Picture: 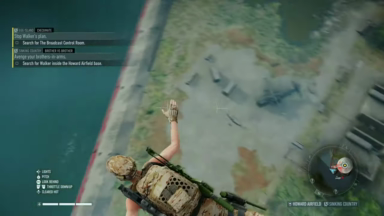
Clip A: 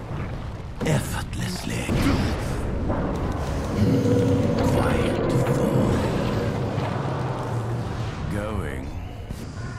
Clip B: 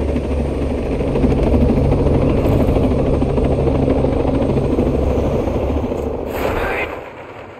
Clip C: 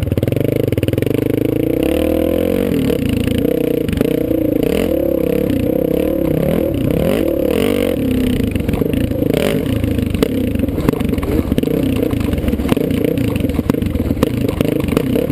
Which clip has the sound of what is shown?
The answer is B